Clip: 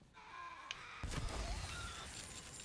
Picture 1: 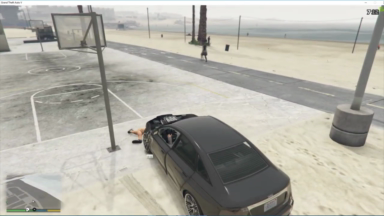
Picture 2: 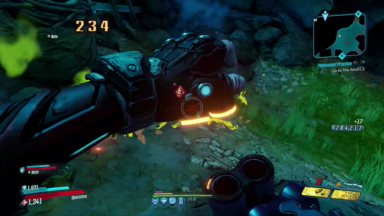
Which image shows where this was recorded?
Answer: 2